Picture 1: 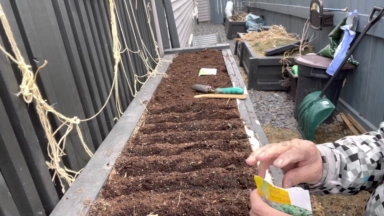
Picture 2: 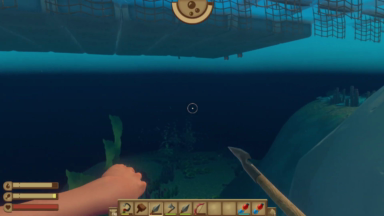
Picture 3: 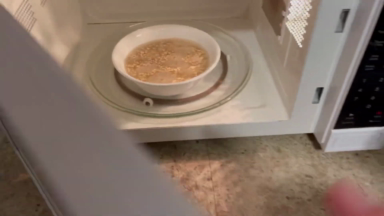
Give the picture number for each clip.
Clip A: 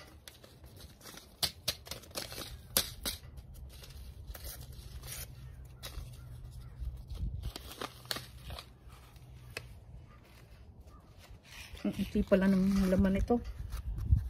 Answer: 1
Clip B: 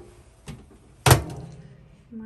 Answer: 3